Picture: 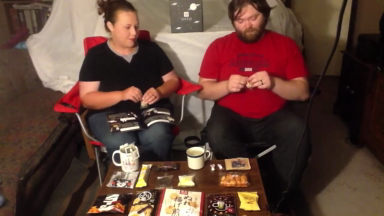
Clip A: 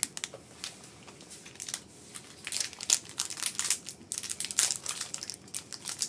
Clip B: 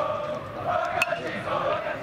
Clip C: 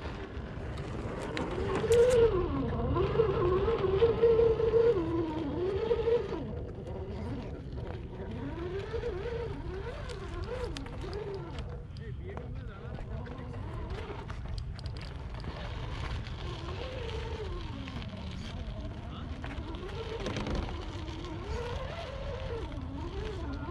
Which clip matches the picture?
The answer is A